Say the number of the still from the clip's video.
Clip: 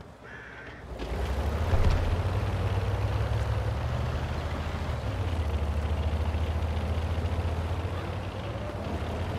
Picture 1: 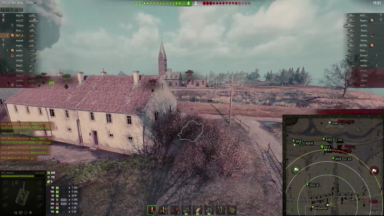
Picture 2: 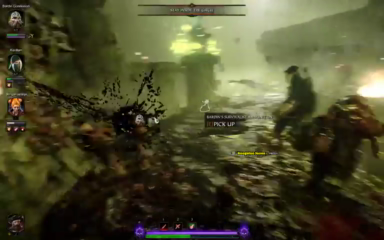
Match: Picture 1